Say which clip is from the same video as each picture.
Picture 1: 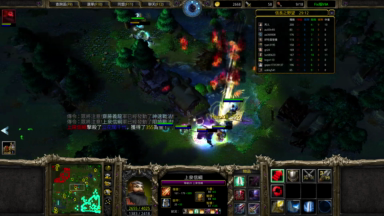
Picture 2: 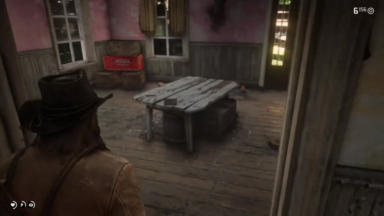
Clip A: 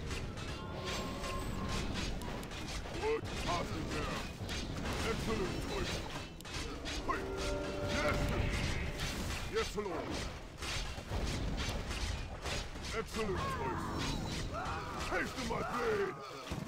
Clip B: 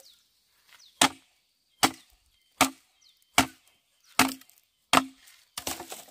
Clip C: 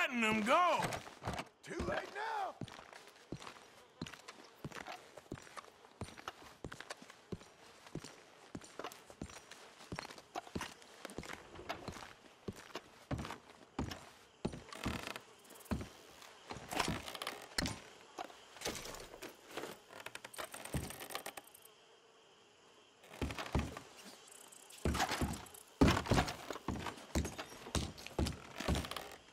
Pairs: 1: A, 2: C